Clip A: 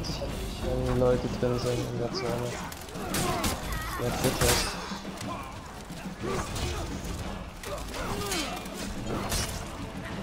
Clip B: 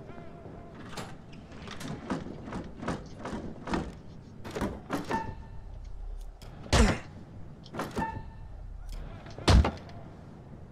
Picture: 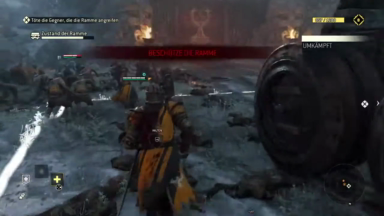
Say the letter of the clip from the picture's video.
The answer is A